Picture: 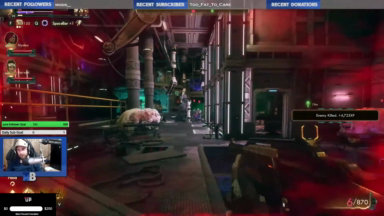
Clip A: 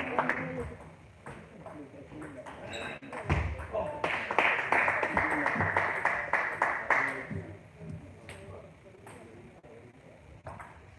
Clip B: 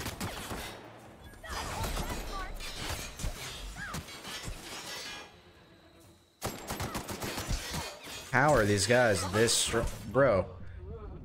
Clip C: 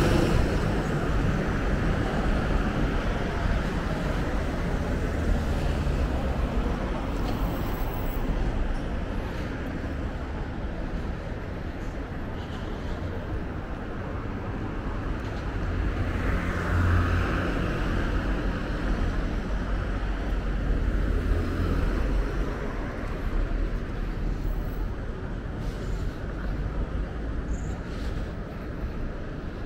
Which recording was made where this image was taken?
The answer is B